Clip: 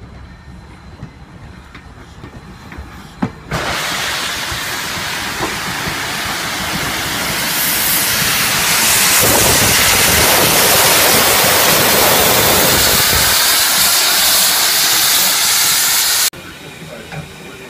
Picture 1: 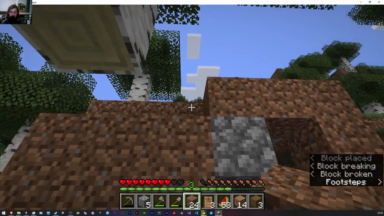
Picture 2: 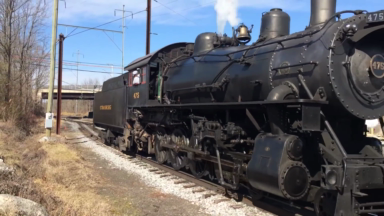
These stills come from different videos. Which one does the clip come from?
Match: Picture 2